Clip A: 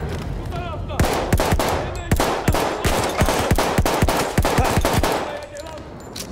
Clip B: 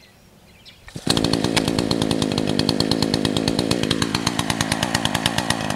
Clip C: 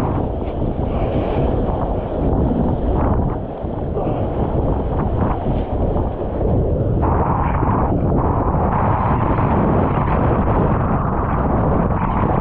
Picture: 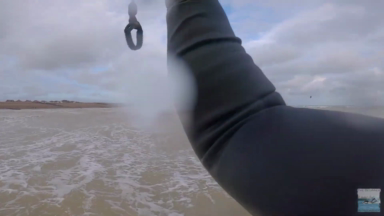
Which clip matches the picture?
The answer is C